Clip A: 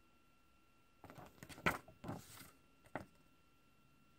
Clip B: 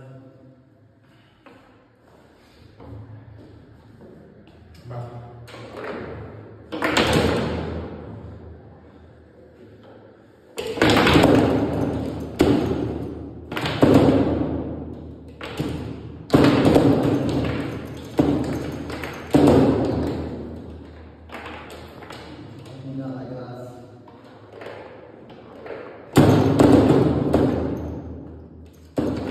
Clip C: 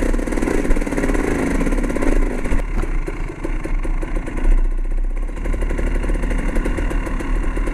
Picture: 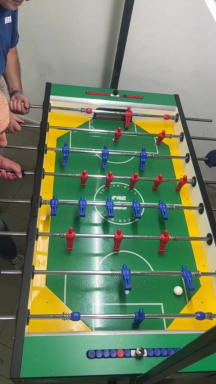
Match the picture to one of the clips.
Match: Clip B